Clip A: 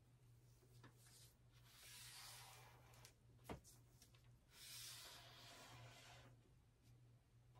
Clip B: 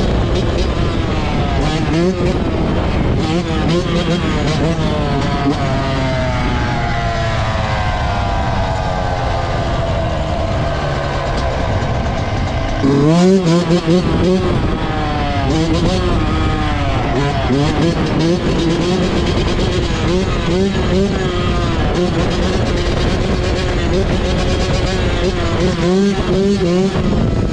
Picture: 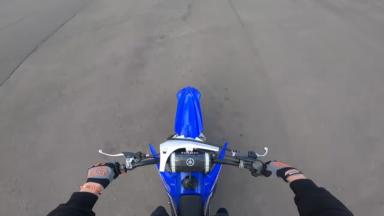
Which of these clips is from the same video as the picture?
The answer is B